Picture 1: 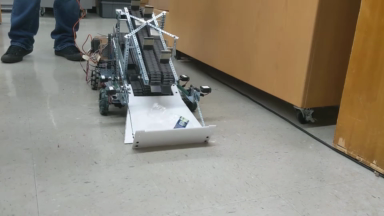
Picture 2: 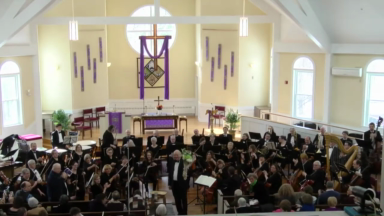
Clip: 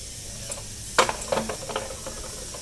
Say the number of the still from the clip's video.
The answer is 1